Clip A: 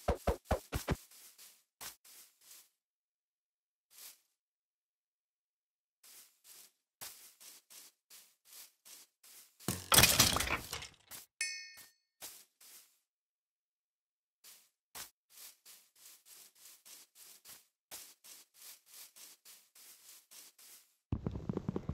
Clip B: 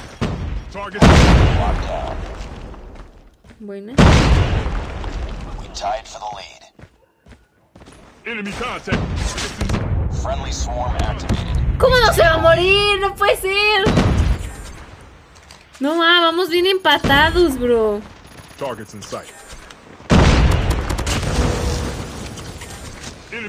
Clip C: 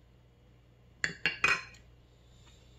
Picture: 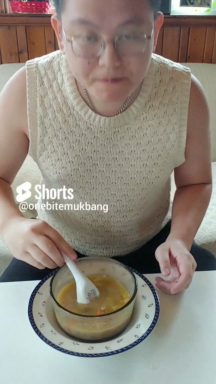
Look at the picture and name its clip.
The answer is C